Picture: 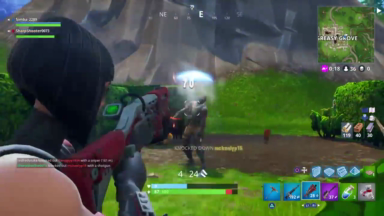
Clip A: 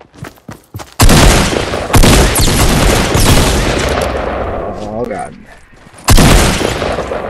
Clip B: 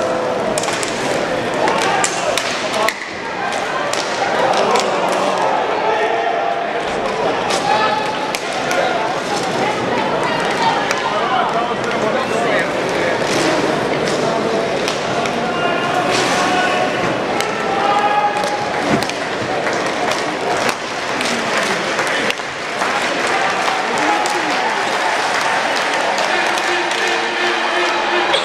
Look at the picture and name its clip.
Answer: A